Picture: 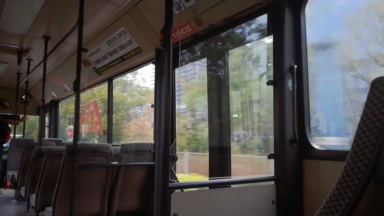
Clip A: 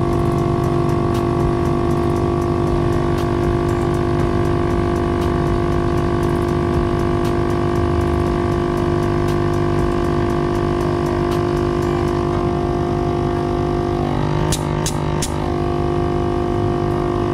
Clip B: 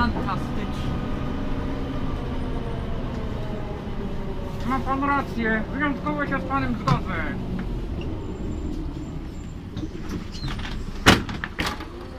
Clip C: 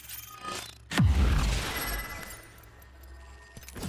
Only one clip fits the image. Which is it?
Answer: B